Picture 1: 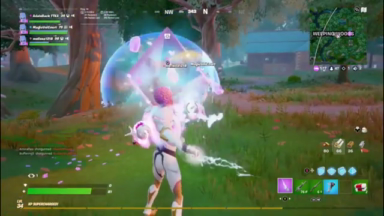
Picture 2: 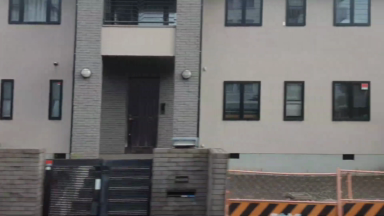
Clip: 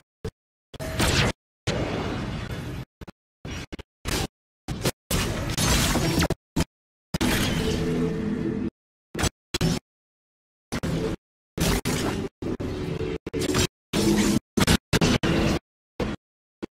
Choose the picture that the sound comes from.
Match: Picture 1